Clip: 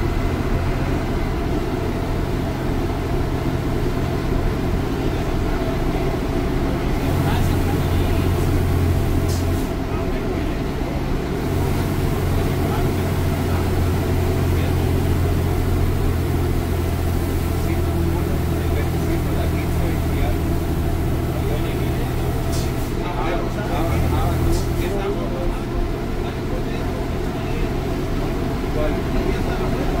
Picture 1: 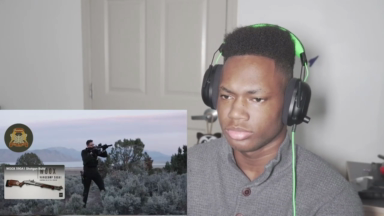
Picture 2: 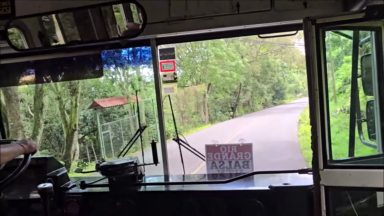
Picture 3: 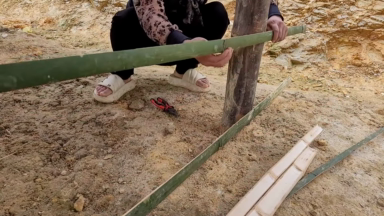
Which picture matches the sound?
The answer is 2